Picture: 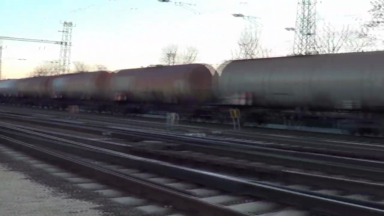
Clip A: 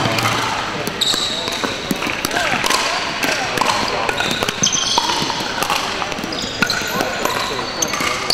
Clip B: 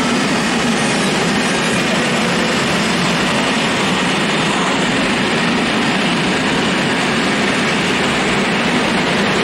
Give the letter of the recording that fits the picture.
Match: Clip B